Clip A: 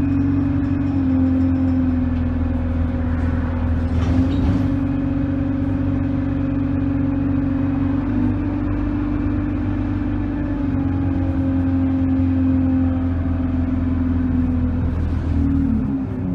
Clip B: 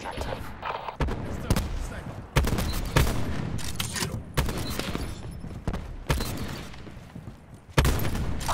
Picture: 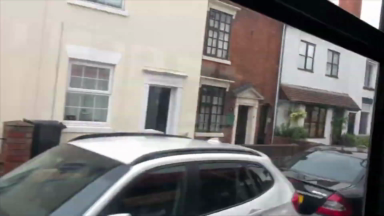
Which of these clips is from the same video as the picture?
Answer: A